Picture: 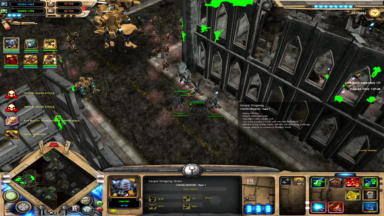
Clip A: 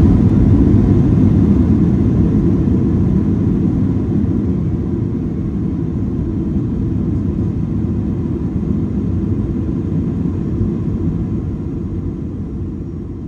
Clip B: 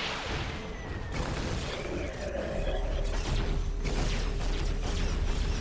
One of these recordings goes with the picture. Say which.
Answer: B